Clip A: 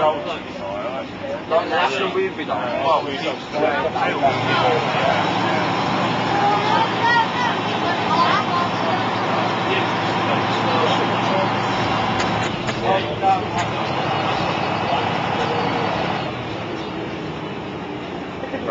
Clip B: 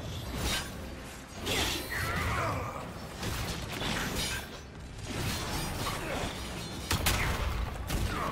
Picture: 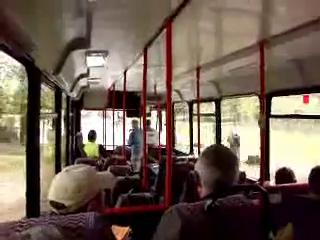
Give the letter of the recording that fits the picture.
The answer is A